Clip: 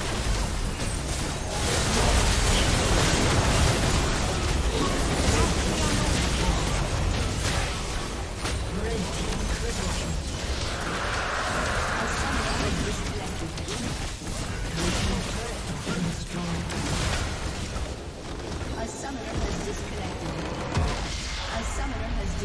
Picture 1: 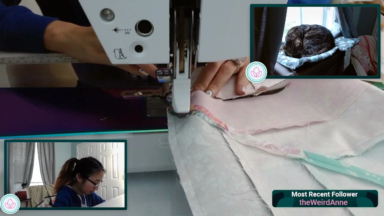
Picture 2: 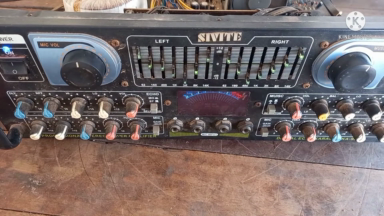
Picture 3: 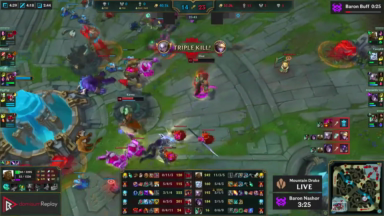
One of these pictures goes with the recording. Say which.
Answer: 3